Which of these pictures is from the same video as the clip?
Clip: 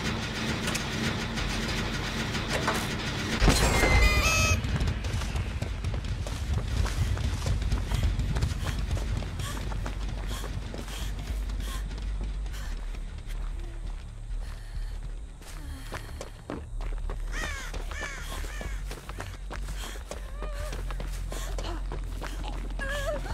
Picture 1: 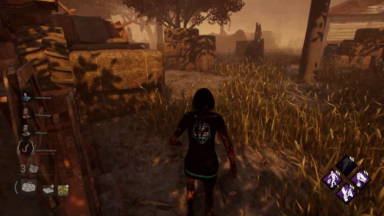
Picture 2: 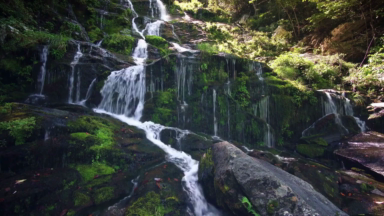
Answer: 1